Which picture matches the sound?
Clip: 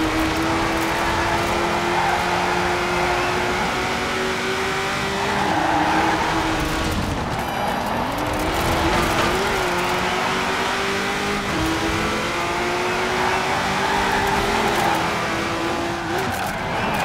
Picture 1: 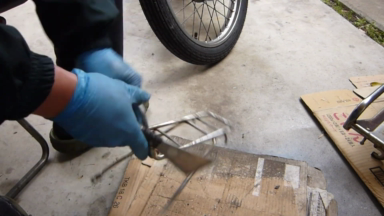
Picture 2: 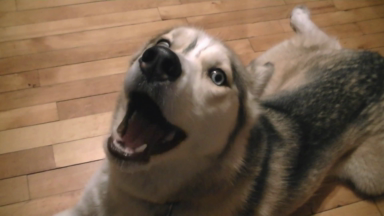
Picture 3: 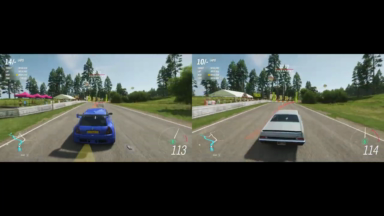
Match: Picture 3